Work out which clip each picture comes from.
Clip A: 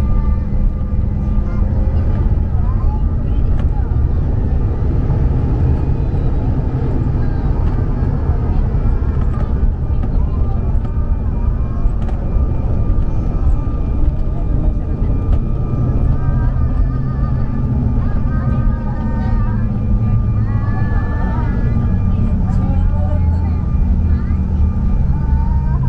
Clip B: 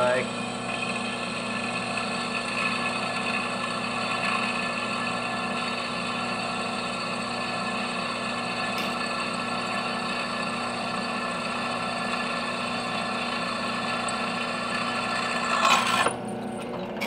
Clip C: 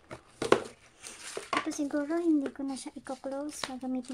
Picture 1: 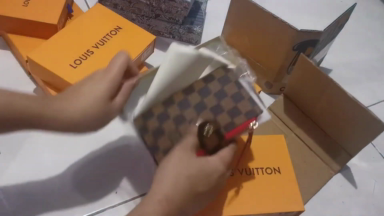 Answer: C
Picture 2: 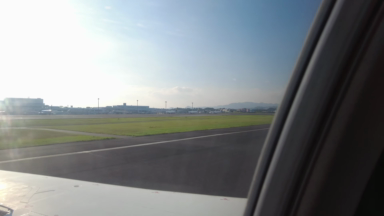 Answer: A